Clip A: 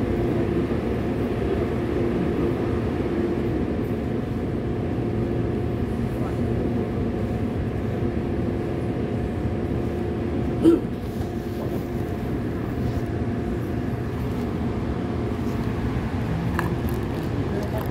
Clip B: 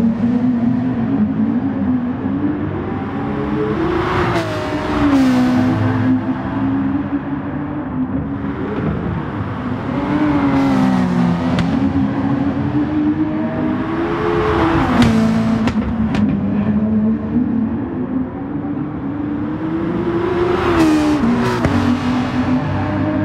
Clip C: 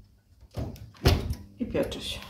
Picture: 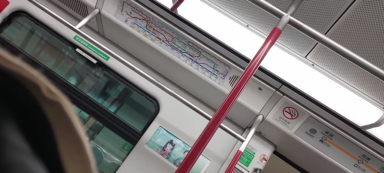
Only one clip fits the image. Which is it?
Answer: A